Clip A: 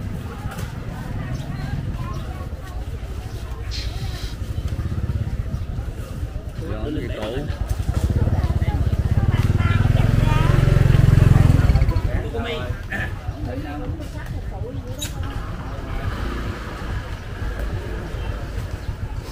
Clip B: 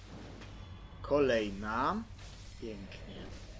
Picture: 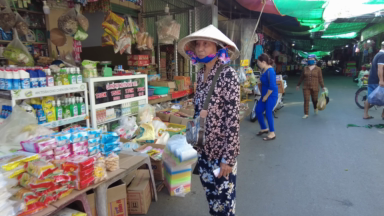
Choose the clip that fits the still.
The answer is A